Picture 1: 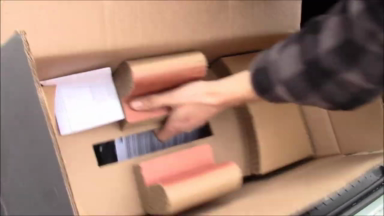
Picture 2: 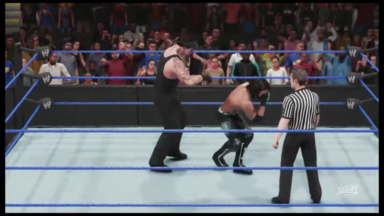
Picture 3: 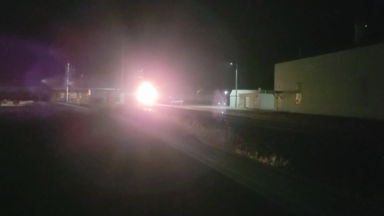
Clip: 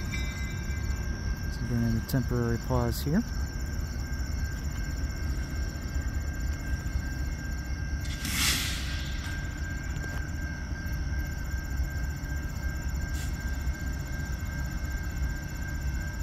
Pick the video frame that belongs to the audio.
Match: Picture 3